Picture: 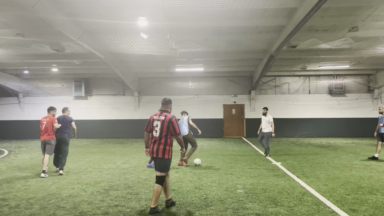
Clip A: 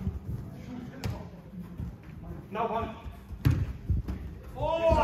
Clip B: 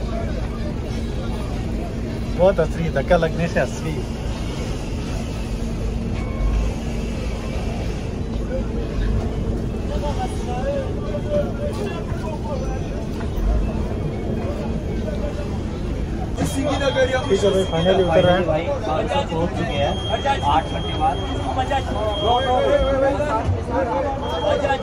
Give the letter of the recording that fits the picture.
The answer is A